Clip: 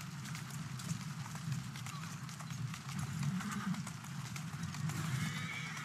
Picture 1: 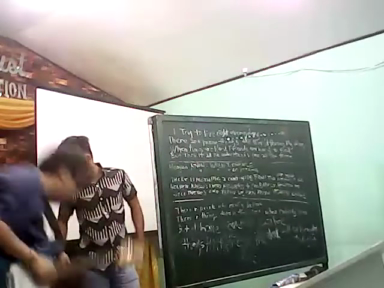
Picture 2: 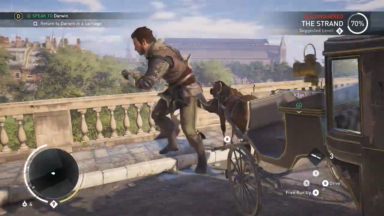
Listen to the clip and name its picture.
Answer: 2